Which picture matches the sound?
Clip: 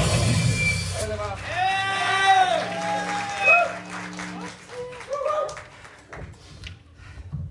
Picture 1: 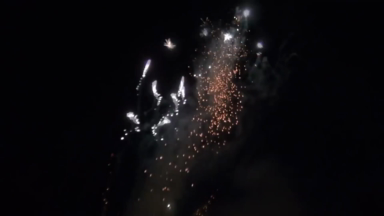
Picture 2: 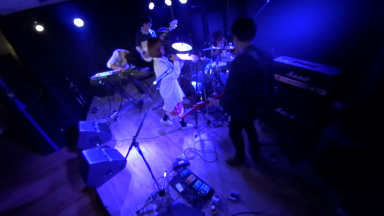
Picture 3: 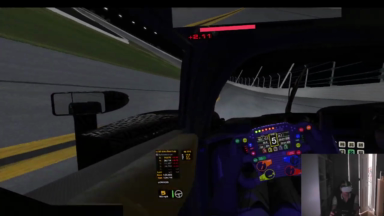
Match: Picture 2